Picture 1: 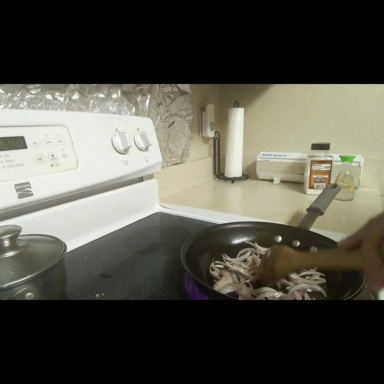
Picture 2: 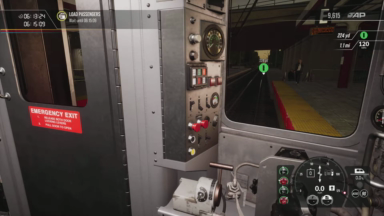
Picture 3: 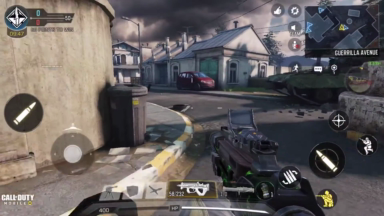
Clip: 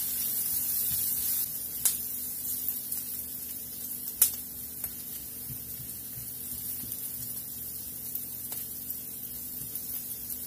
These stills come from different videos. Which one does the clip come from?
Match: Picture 1